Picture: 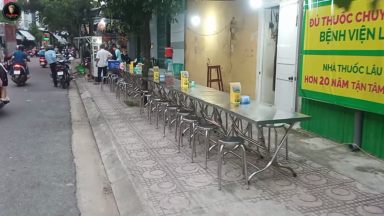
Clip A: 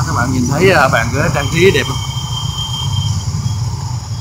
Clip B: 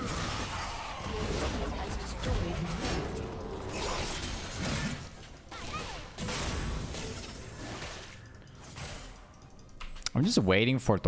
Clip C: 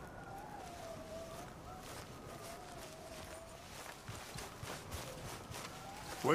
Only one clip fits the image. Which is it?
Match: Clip A